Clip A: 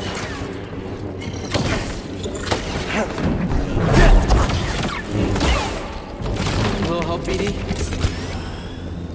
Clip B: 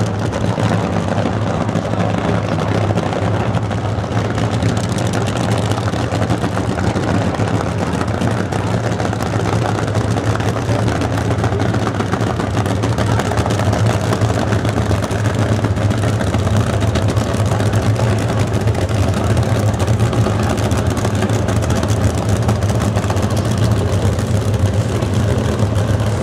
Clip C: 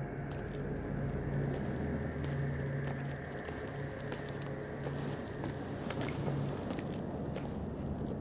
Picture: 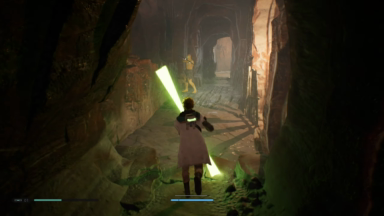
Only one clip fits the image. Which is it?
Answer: A